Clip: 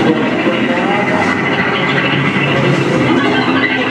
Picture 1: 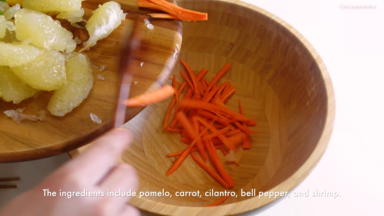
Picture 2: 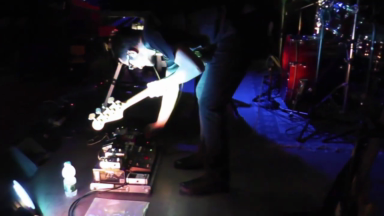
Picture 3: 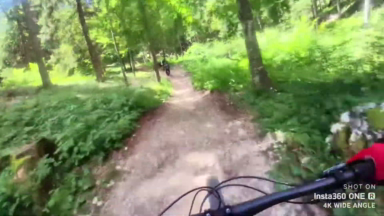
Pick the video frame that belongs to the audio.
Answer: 2